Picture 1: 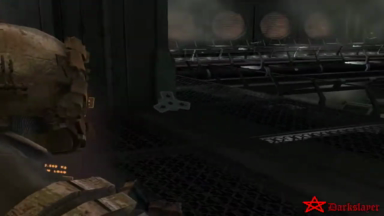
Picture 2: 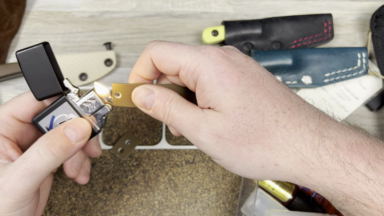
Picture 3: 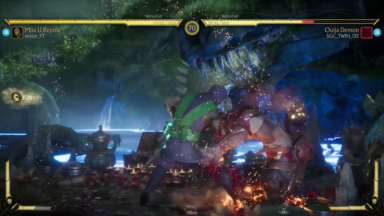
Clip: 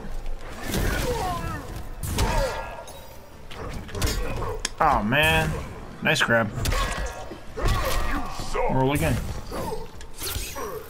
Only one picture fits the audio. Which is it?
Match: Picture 3